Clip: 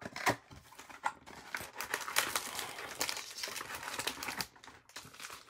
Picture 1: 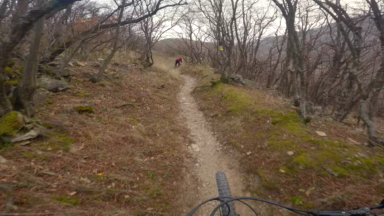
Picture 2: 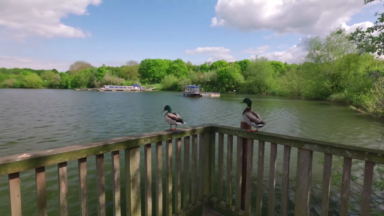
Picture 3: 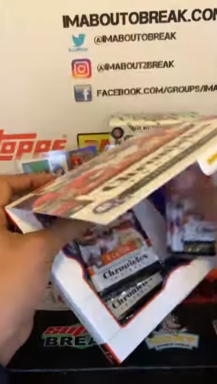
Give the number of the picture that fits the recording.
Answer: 3